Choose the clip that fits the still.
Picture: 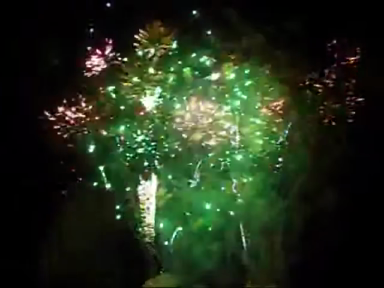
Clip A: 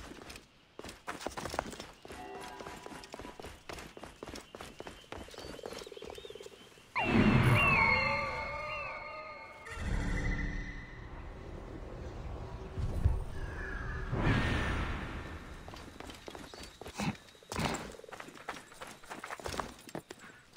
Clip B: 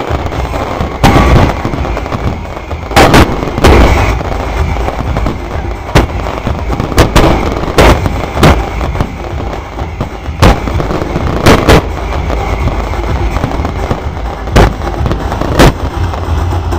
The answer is B